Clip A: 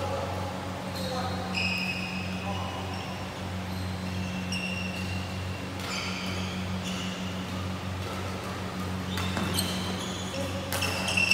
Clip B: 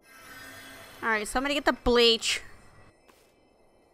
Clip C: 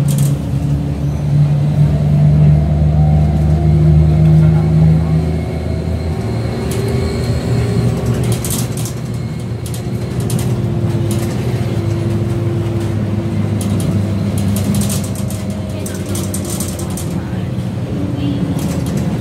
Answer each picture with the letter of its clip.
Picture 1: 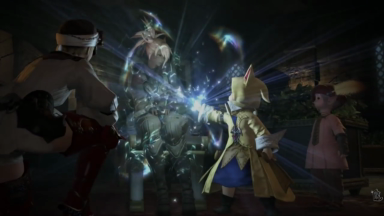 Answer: B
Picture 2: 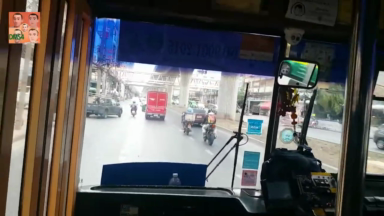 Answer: C